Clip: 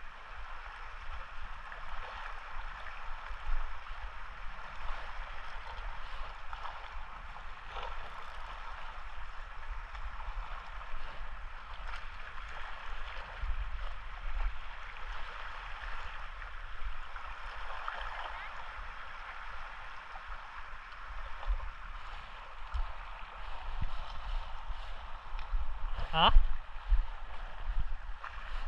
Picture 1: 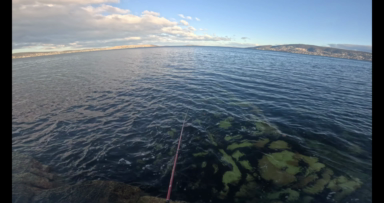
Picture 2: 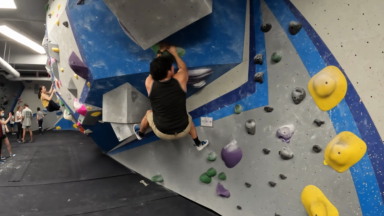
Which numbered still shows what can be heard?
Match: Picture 1